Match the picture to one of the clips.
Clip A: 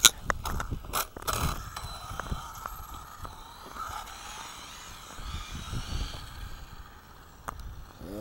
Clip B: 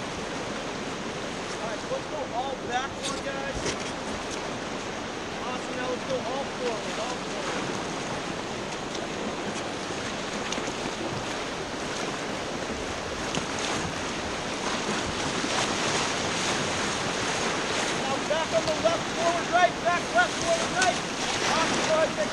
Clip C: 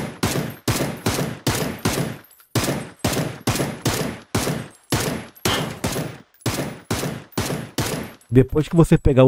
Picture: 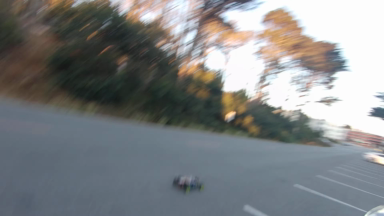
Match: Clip A